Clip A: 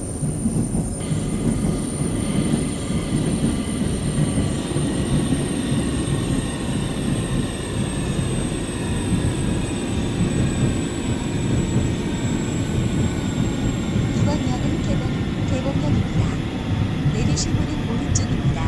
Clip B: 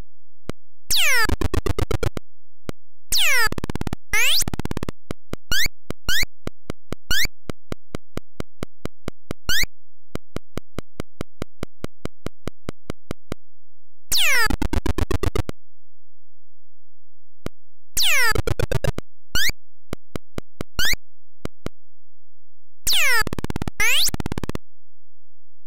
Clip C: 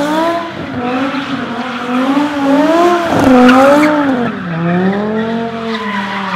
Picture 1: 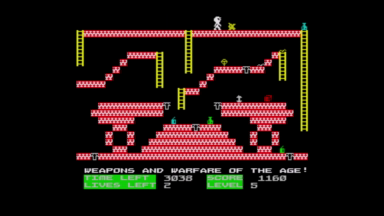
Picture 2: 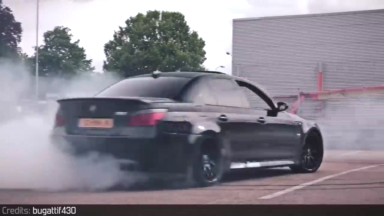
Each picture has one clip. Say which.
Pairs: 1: B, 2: C